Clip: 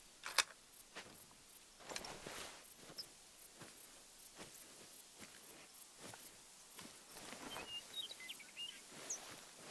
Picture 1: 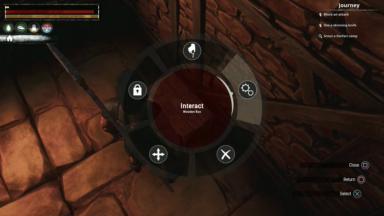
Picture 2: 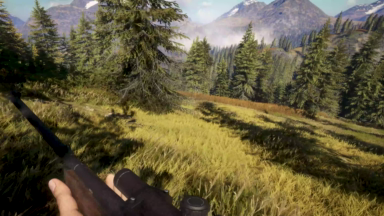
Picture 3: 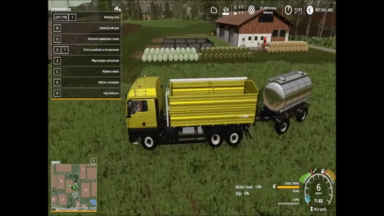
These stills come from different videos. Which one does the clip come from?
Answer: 2